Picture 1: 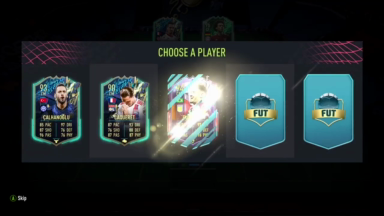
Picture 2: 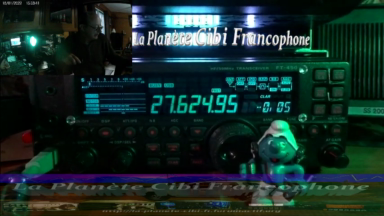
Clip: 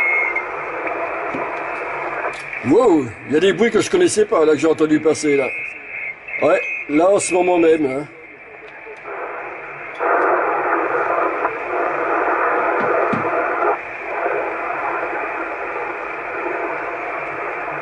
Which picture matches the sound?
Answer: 2